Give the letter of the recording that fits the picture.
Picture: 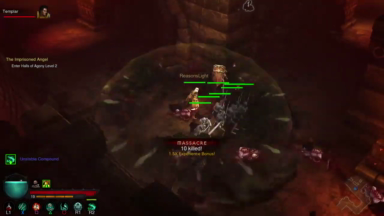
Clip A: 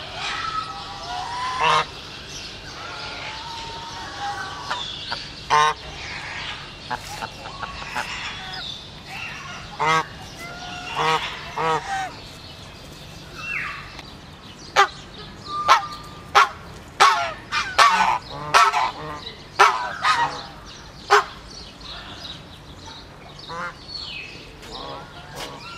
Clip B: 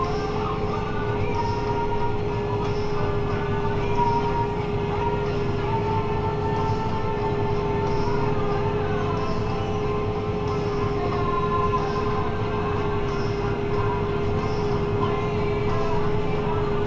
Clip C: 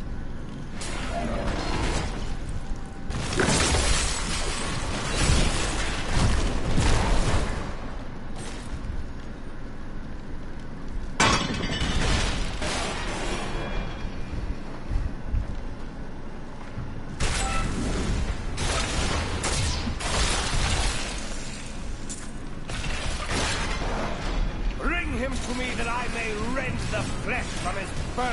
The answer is C